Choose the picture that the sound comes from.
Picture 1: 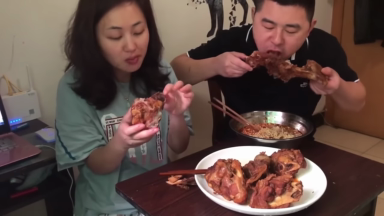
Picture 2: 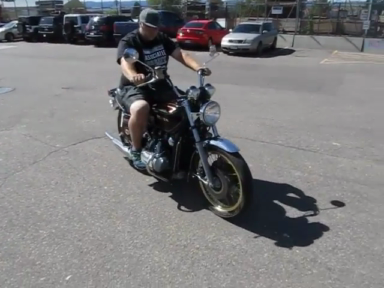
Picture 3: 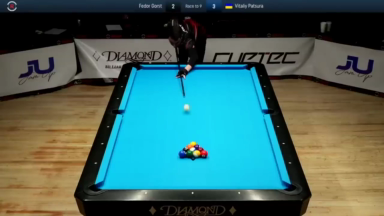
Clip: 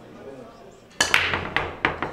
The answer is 3